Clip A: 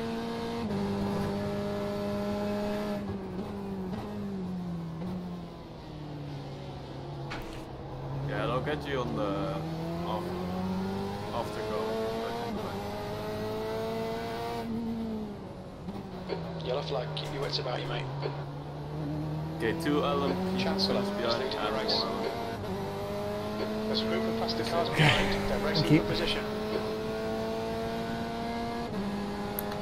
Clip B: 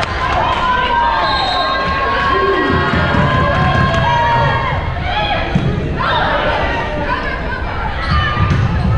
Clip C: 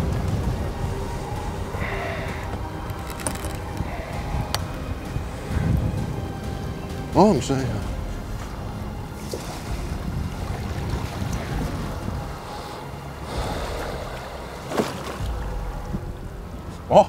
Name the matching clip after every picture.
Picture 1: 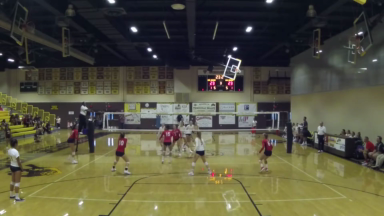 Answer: B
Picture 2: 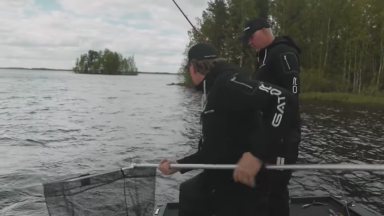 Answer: C